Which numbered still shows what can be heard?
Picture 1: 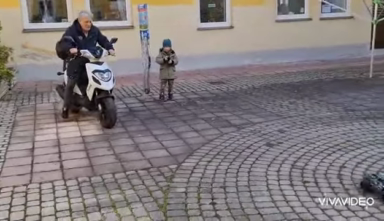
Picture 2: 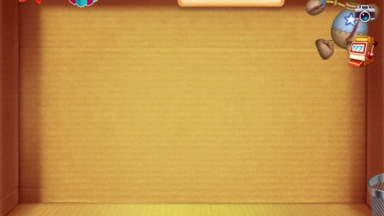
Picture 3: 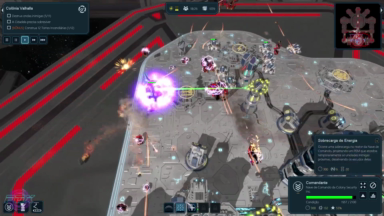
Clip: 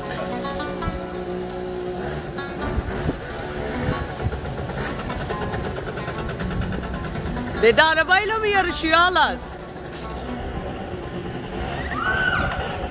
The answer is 1